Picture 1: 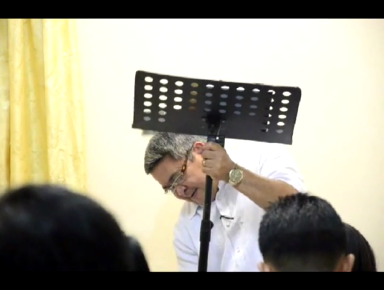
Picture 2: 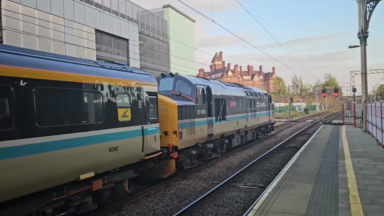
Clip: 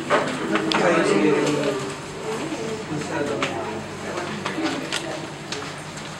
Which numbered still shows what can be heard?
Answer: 1